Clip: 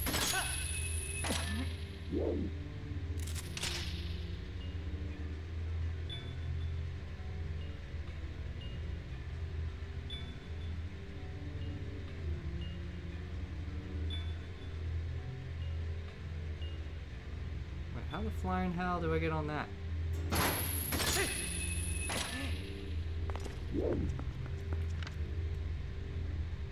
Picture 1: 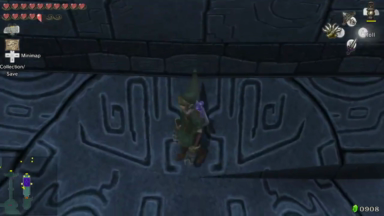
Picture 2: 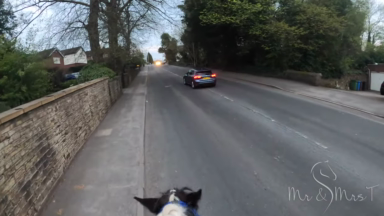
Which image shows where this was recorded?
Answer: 1